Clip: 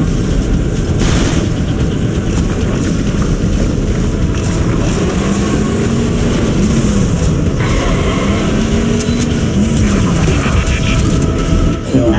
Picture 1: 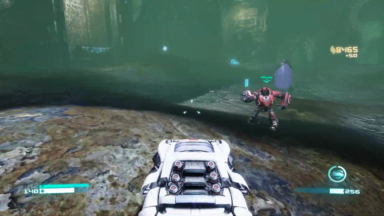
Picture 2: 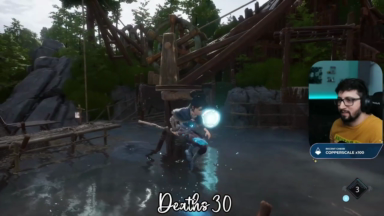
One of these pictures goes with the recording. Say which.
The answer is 1